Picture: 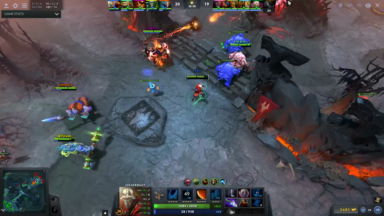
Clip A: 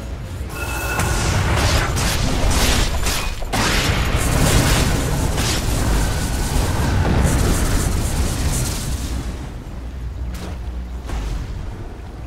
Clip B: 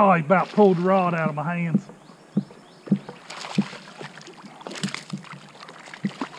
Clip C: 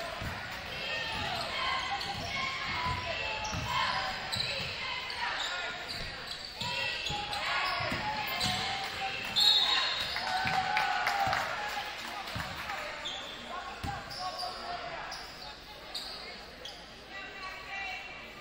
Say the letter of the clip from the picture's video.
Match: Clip A